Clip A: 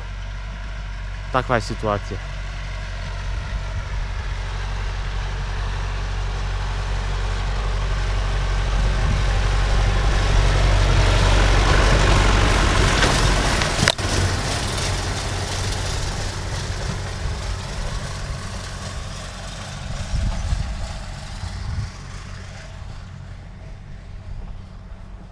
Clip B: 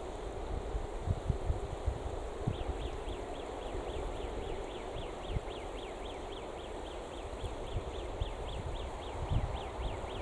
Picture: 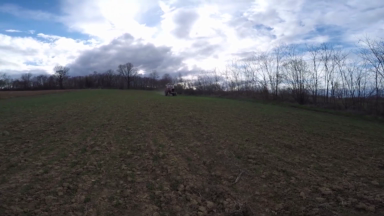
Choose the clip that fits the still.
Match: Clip A